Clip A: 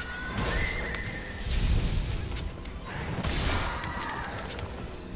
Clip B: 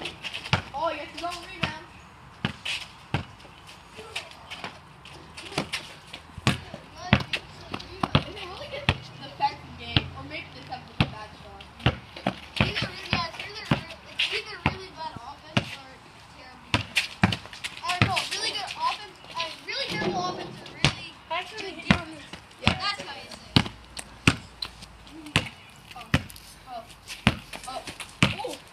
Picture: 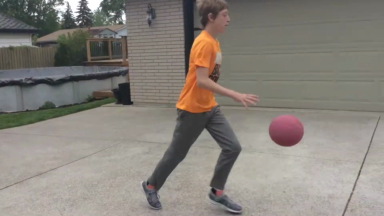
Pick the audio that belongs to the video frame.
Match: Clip B